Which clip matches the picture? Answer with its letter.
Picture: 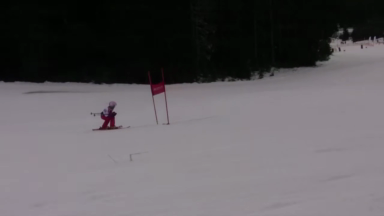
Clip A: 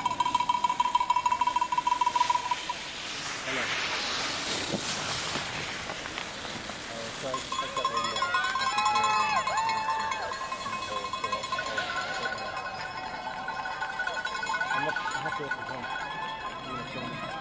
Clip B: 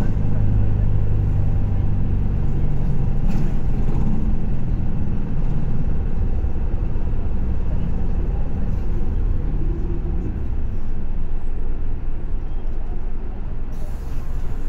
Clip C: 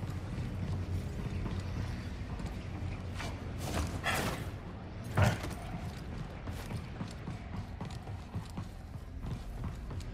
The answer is A